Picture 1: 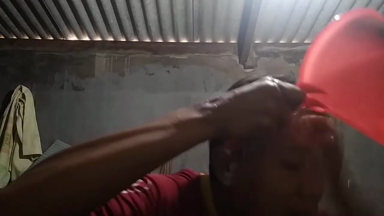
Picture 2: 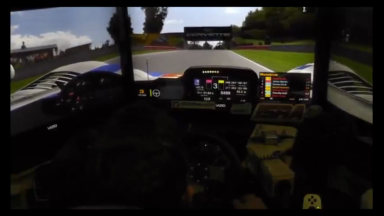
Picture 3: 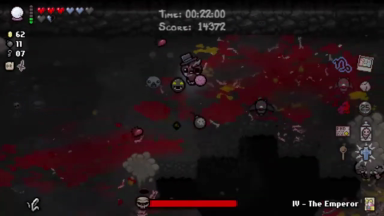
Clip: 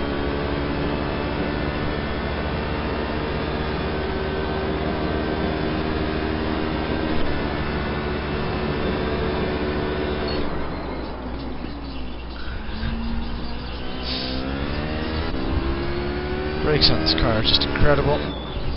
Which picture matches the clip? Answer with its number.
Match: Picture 2